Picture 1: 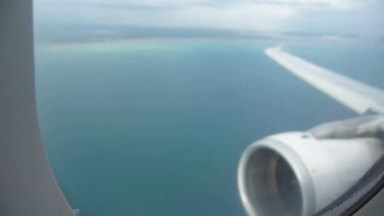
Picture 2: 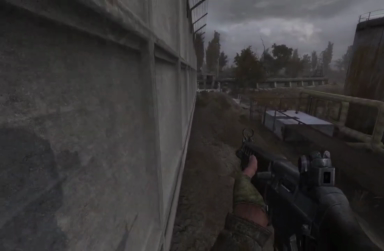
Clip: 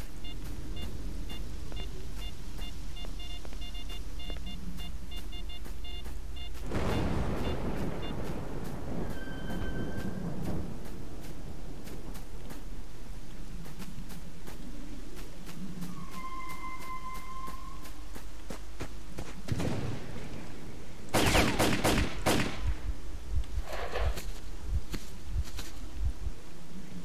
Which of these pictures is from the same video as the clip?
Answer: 2